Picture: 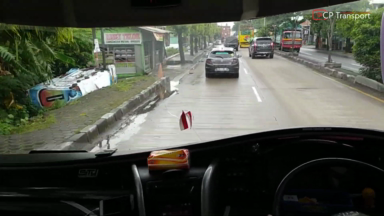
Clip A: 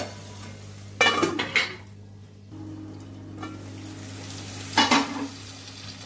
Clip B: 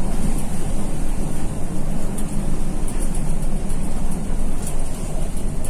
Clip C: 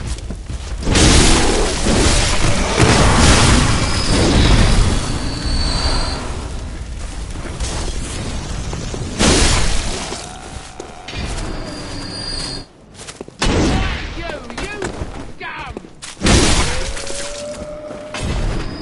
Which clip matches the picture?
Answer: B